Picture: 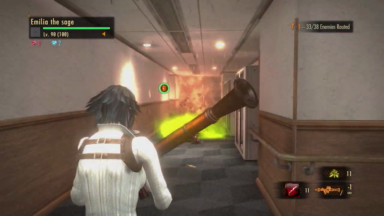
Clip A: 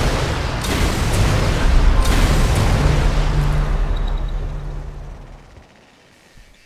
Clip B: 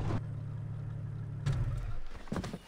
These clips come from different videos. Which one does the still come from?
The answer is A